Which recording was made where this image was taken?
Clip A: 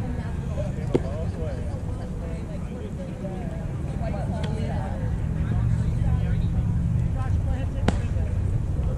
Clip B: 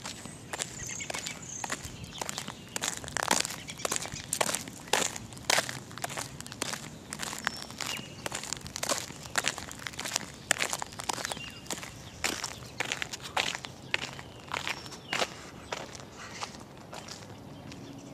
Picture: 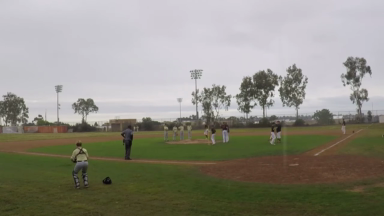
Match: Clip A